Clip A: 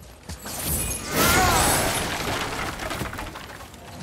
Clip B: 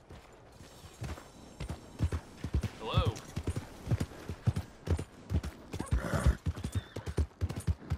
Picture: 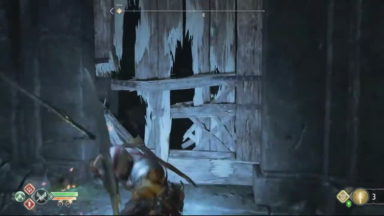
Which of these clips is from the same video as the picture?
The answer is A